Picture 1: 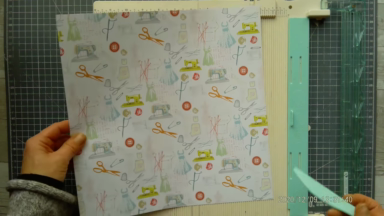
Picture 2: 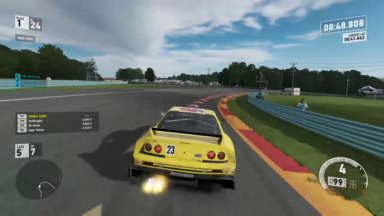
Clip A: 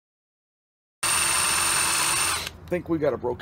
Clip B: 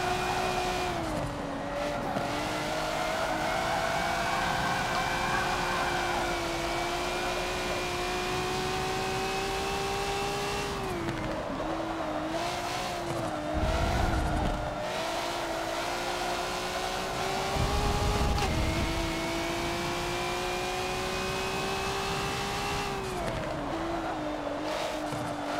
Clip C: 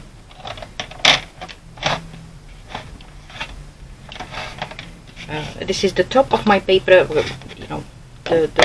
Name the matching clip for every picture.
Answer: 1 C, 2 B